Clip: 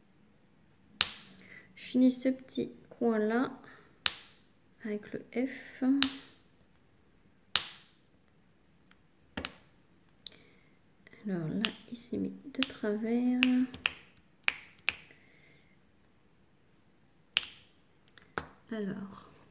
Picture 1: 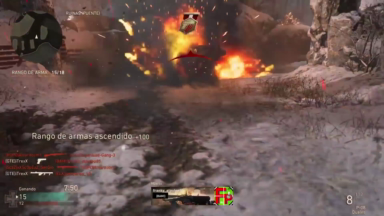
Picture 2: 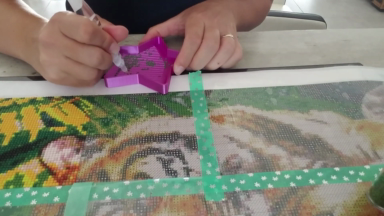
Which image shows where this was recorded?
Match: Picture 2